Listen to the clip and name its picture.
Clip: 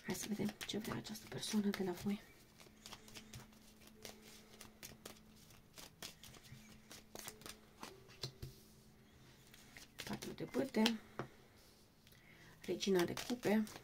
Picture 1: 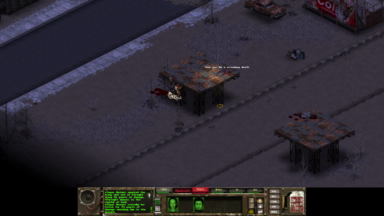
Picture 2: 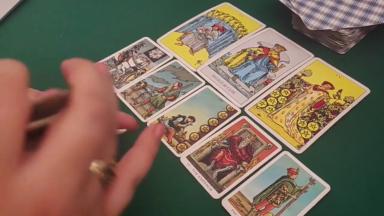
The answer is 2